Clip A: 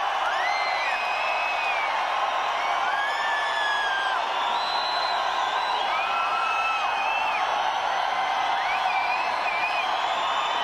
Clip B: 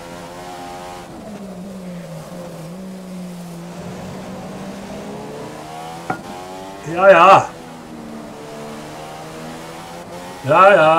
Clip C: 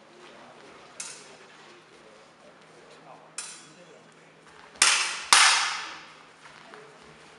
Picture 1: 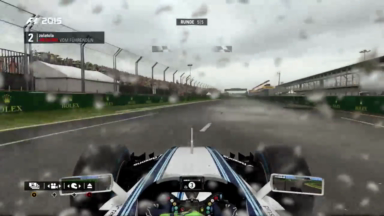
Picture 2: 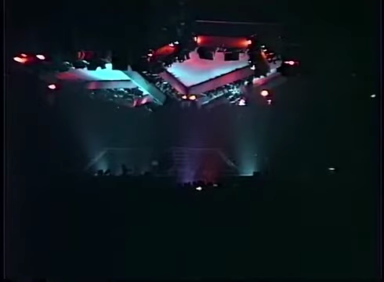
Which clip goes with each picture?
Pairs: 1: B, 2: A